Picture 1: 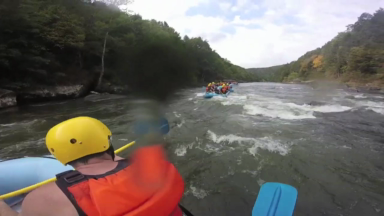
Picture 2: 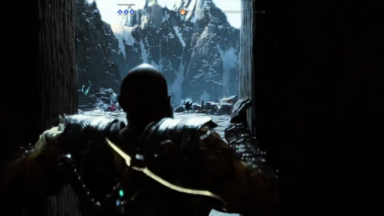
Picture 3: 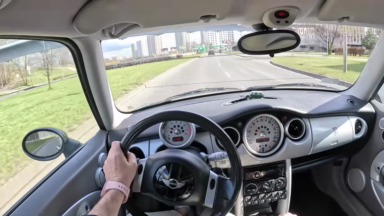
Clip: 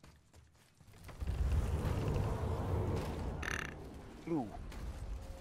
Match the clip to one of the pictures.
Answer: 2